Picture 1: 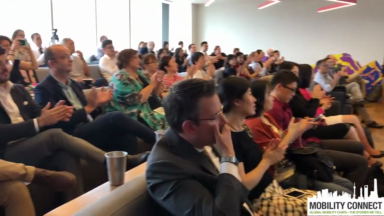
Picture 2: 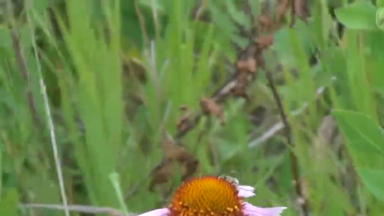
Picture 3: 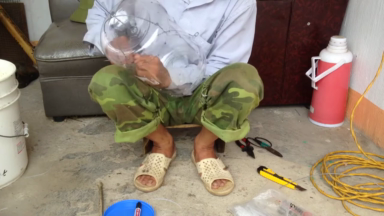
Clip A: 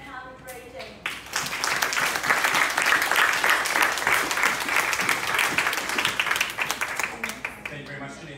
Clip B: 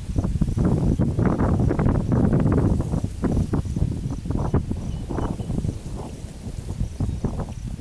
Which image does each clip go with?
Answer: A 1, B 2